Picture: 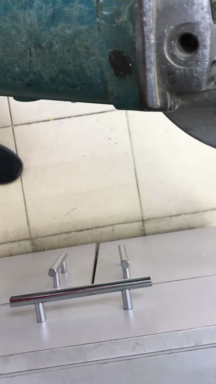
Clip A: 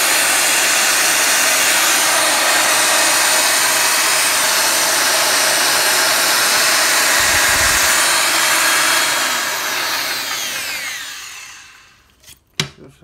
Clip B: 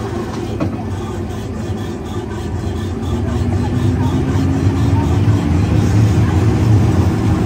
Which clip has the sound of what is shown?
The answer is A